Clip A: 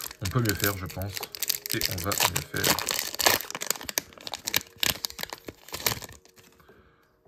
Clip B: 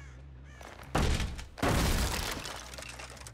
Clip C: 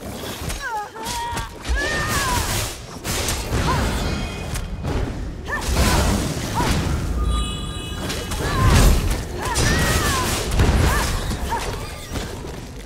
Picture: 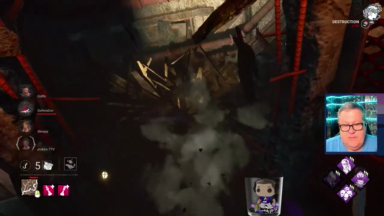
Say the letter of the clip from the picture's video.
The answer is B